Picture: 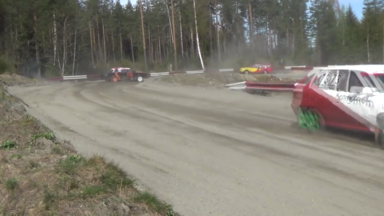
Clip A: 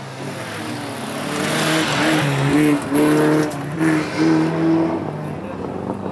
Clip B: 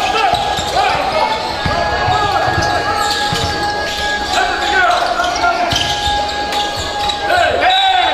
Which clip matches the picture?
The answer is A